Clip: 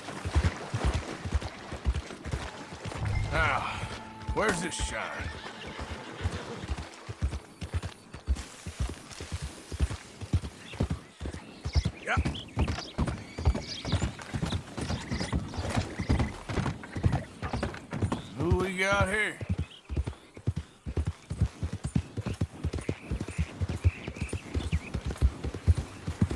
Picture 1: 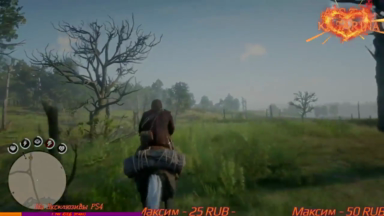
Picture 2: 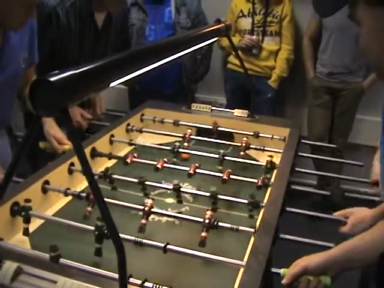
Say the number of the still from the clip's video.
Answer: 1